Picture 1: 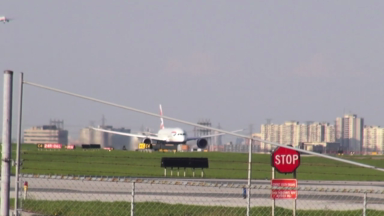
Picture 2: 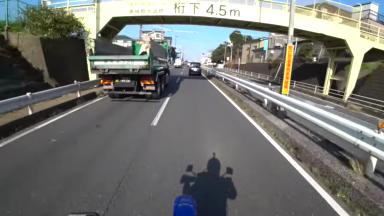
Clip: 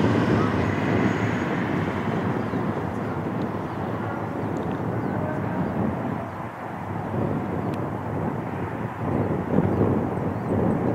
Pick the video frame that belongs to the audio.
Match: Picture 1